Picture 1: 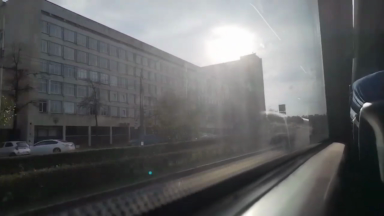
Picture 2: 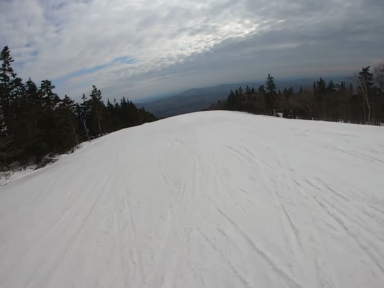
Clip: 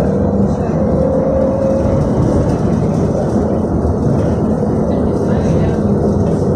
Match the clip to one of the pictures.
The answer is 1